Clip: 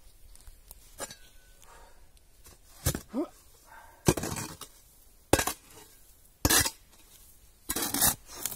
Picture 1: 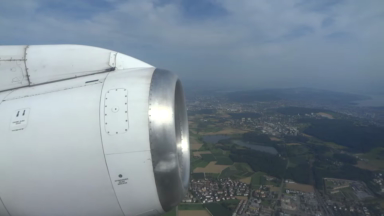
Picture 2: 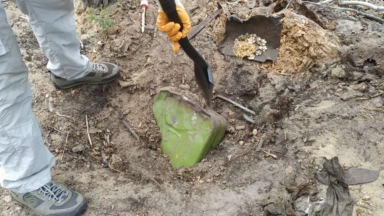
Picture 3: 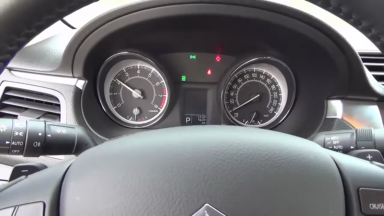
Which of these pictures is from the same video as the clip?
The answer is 2